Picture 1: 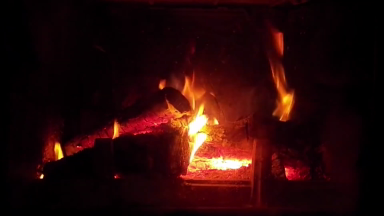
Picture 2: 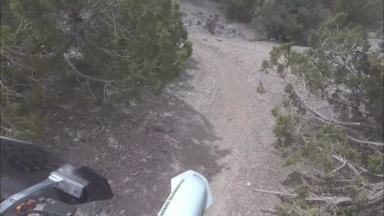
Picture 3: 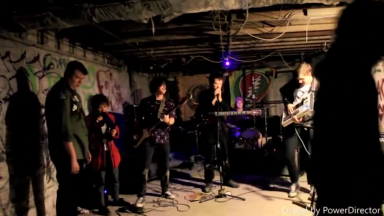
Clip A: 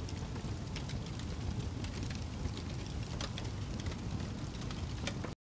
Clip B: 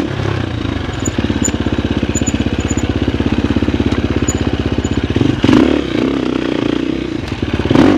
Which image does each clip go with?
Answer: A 1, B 2